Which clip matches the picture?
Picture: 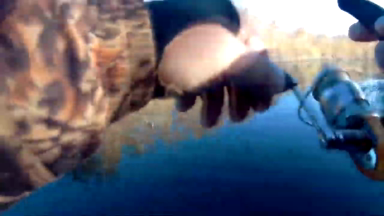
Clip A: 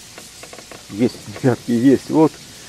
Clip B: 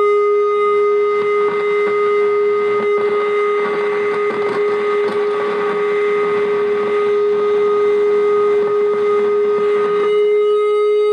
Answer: A